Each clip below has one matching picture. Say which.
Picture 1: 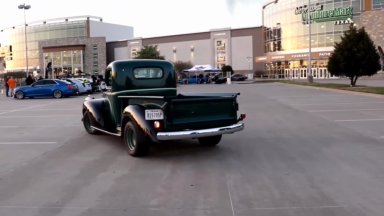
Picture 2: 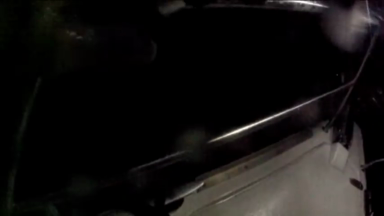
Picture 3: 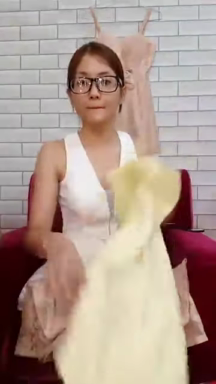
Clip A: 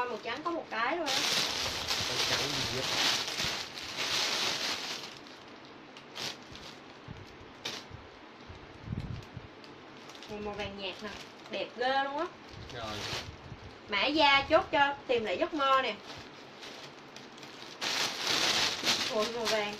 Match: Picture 3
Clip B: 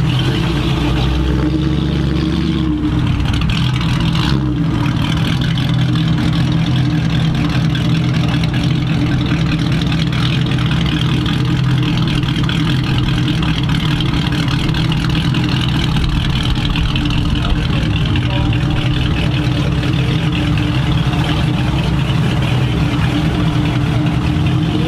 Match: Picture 1